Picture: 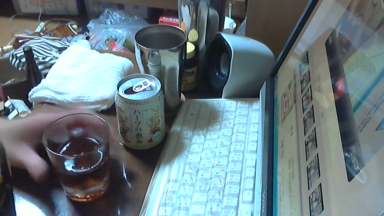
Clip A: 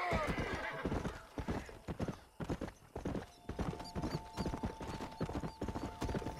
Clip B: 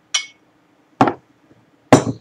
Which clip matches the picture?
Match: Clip B